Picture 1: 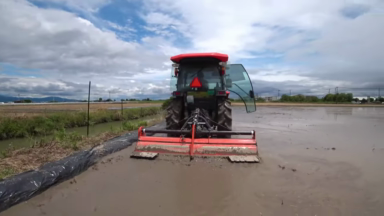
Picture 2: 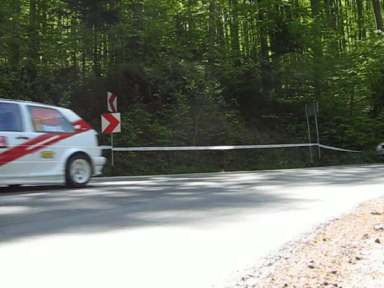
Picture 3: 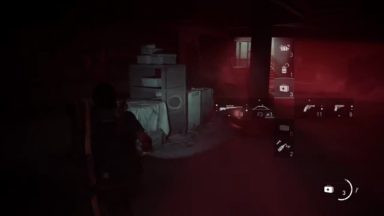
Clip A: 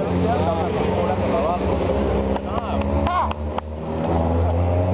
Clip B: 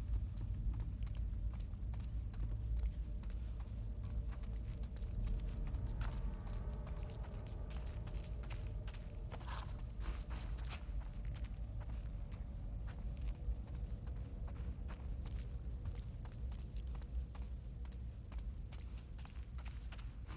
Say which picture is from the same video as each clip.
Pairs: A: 2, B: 3